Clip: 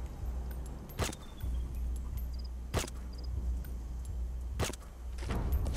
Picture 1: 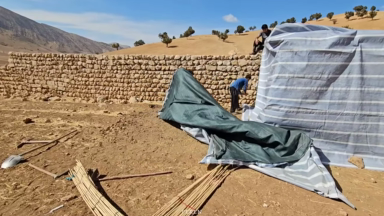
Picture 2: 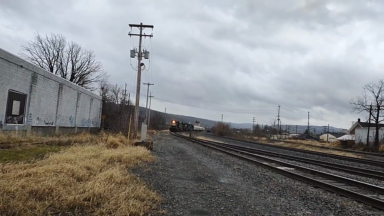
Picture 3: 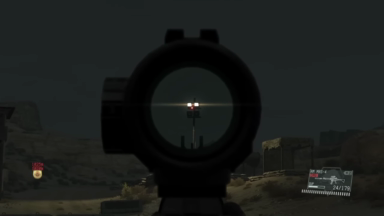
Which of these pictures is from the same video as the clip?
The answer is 3